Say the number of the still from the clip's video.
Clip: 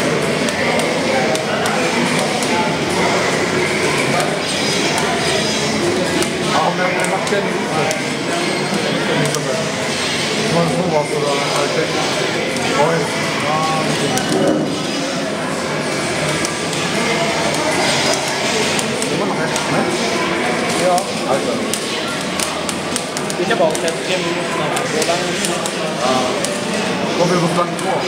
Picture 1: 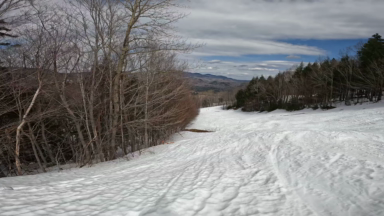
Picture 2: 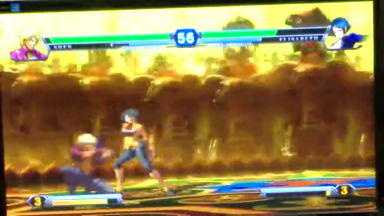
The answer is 2